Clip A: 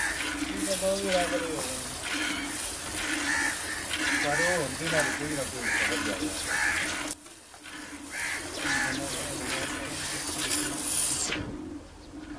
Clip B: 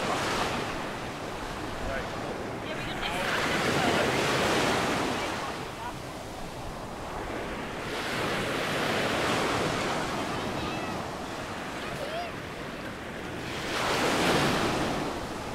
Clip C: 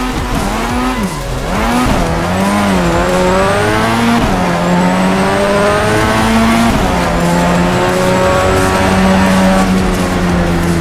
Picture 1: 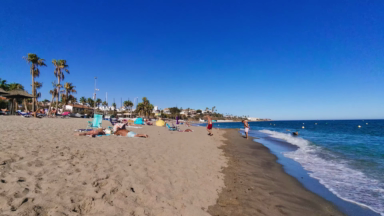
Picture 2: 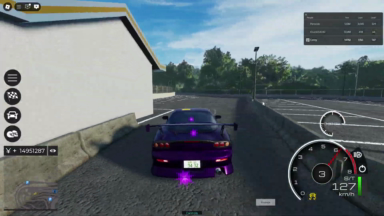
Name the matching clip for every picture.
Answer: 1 B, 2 C